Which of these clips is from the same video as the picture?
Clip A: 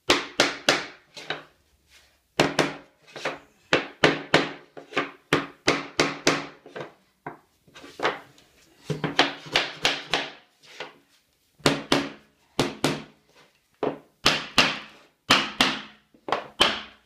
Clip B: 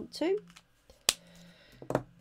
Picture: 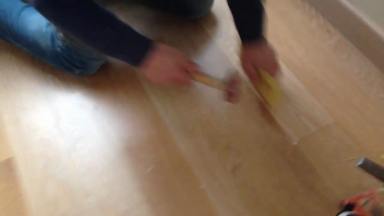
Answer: A